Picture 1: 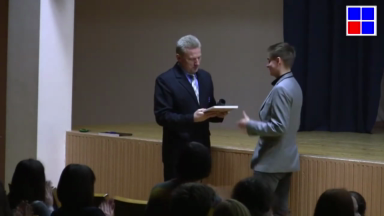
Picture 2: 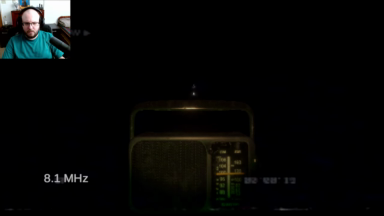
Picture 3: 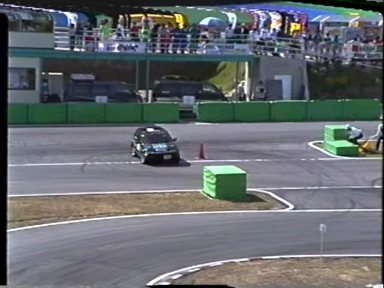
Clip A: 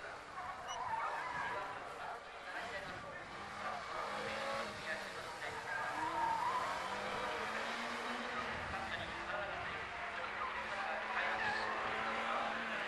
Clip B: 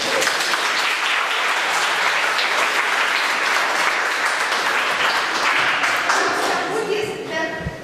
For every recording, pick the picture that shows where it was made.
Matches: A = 3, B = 1